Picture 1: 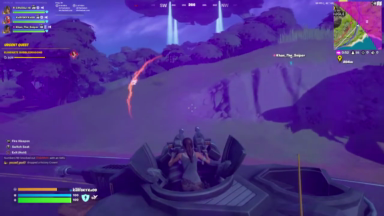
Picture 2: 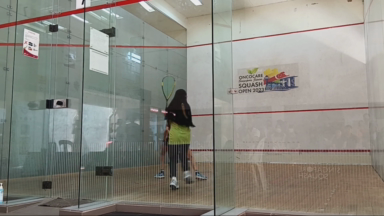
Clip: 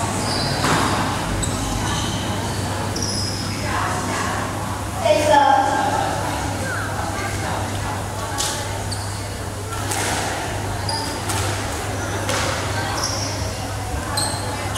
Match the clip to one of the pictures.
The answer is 2